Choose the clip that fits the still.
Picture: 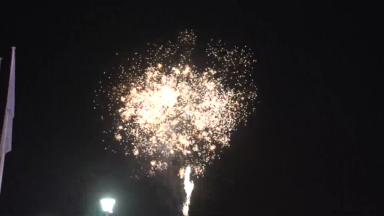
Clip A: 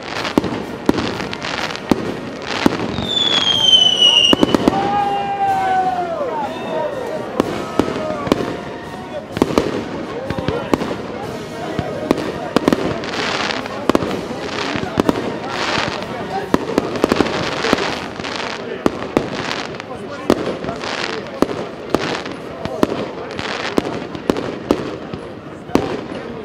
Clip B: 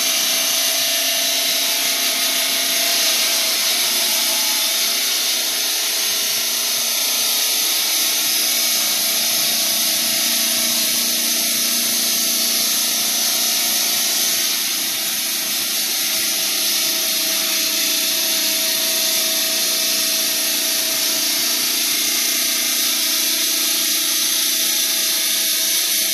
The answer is A